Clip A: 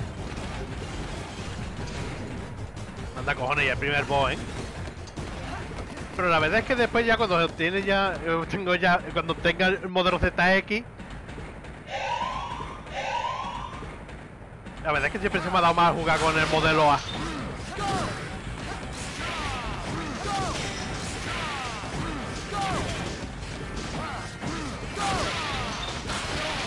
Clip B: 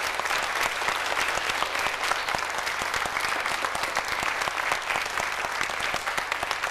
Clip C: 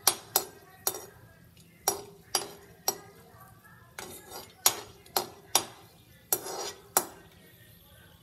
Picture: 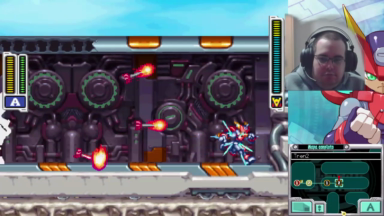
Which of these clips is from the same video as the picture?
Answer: A